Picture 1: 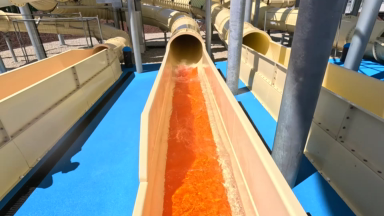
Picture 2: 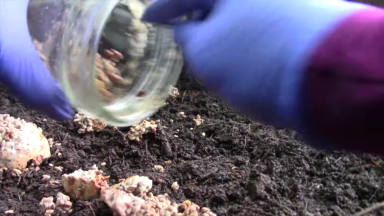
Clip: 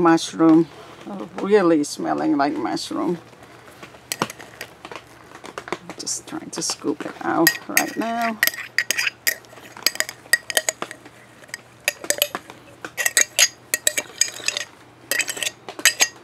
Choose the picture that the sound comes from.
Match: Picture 2